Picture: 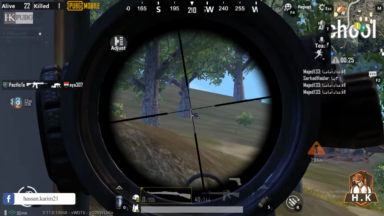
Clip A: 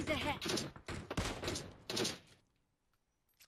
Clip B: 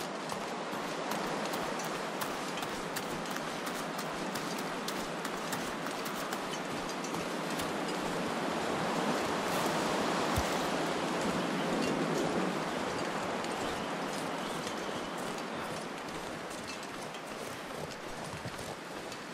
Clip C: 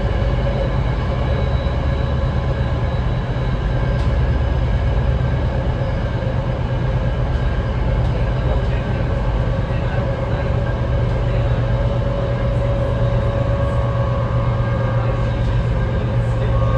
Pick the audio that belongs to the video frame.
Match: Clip A